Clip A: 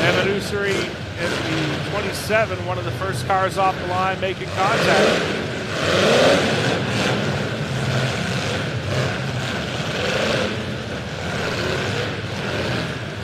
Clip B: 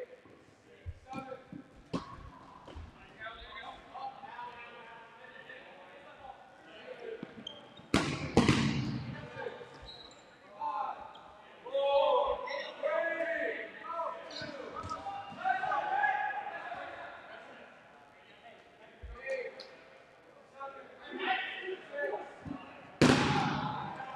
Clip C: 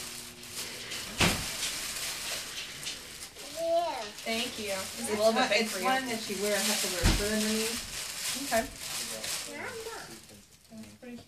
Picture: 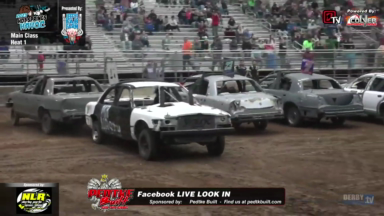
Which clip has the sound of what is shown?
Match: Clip A